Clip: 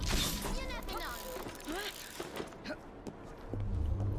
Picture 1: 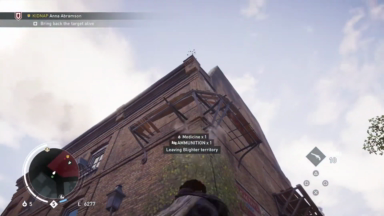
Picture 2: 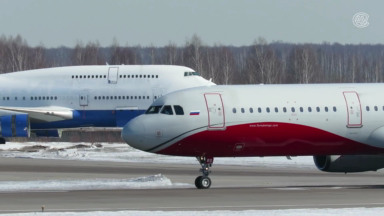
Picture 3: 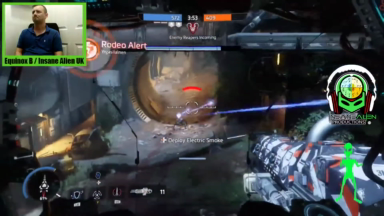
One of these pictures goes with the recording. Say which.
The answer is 1